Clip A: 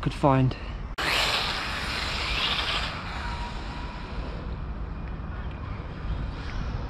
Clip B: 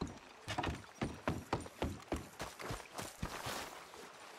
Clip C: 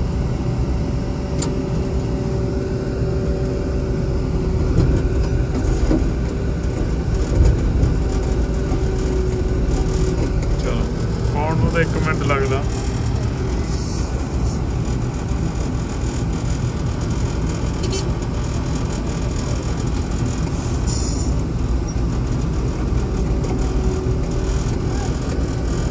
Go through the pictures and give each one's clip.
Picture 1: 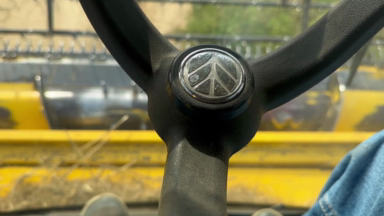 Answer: C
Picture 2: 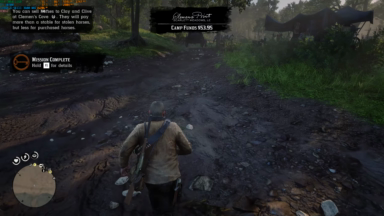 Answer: B